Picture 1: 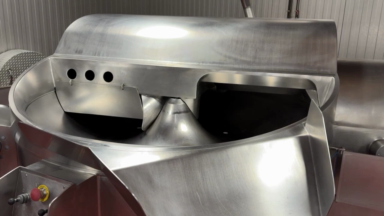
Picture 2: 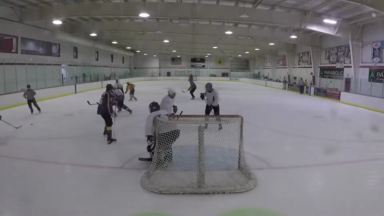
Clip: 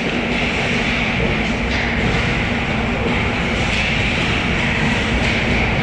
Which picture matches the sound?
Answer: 2